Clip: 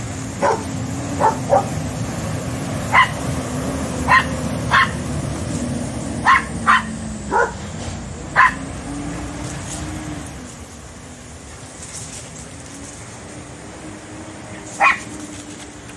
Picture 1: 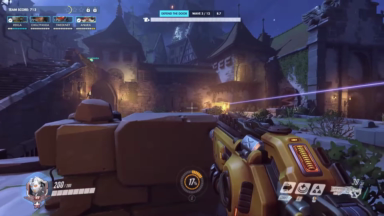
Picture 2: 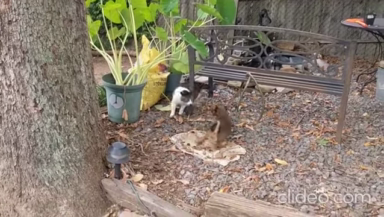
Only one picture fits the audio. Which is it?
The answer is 2